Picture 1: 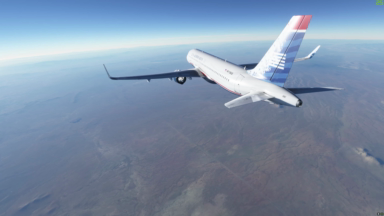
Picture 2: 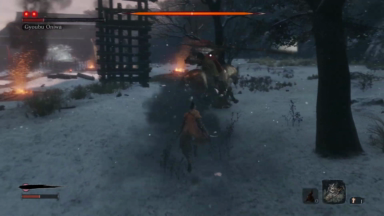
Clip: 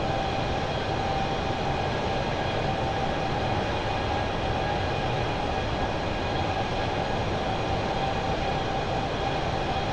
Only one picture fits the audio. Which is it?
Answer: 1